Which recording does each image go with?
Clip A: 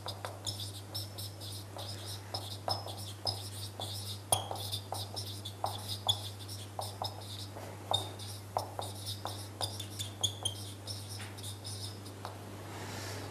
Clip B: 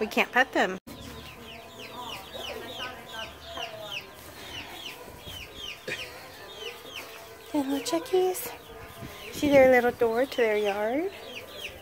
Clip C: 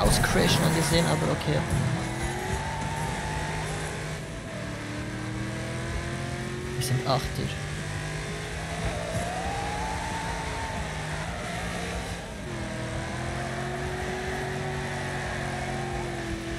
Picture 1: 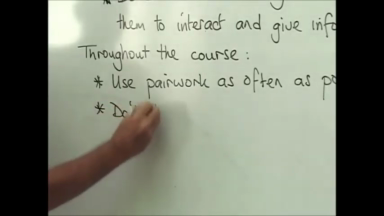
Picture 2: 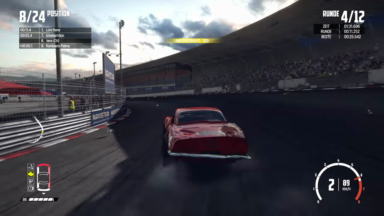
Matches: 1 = A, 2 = C